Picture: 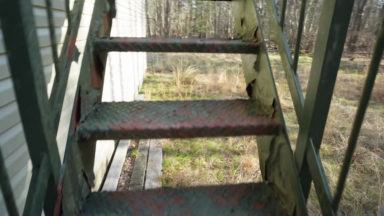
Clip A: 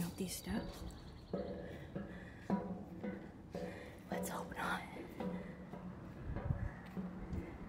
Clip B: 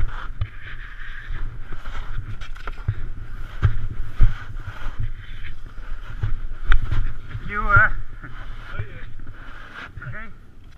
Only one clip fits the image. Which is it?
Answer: A